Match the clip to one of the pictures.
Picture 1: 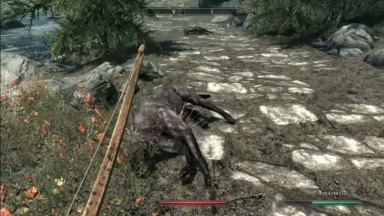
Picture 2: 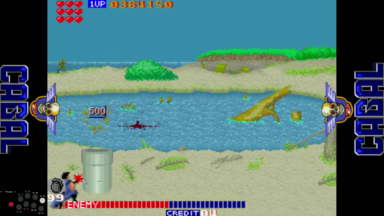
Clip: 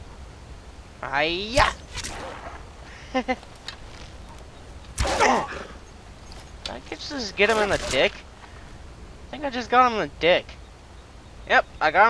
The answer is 1